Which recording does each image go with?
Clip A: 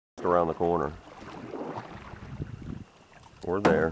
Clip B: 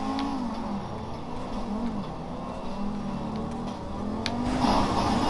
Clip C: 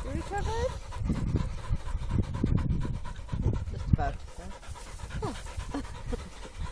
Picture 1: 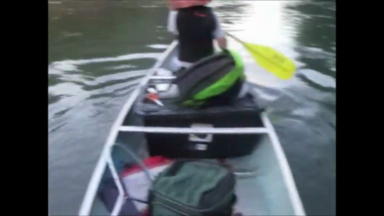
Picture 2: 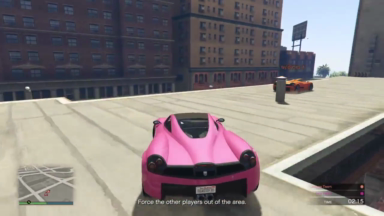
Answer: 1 A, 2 B